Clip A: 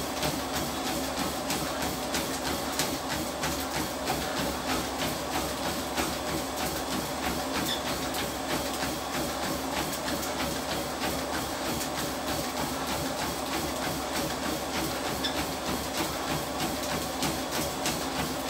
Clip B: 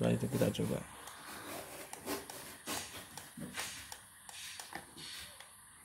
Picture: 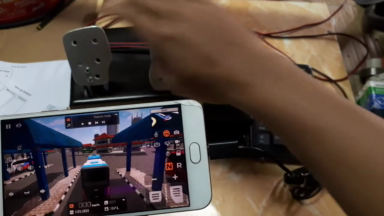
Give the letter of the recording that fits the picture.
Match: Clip B